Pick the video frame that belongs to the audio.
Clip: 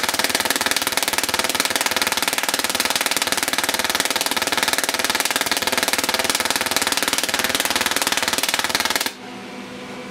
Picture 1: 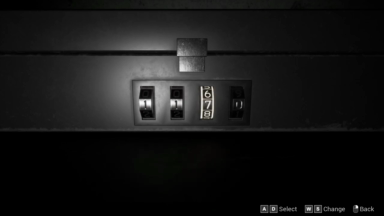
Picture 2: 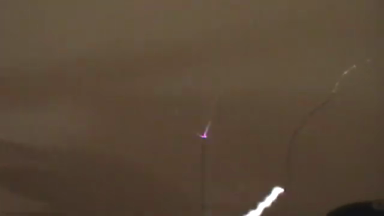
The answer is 2